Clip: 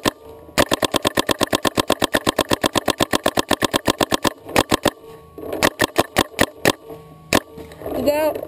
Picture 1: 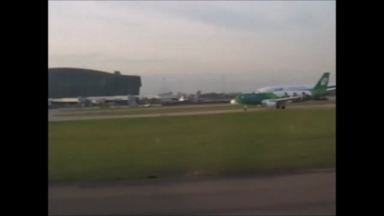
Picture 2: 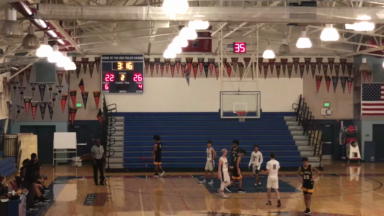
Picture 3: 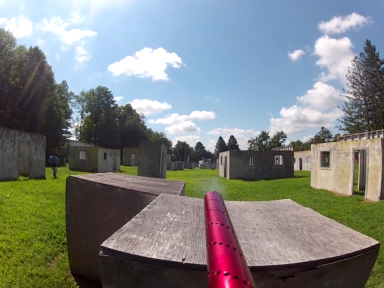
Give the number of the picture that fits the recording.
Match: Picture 3